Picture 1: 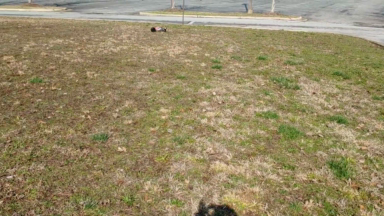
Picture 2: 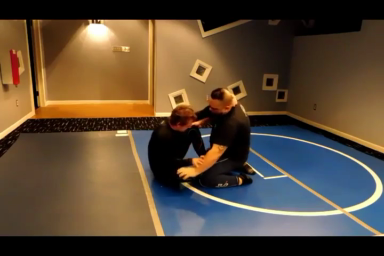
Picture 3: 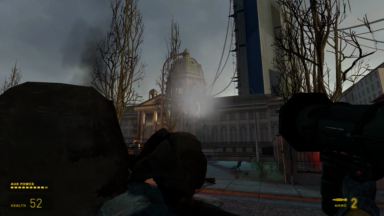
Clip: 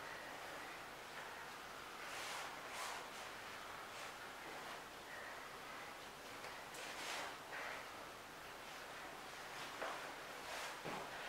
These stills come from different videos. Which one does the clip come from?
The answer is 2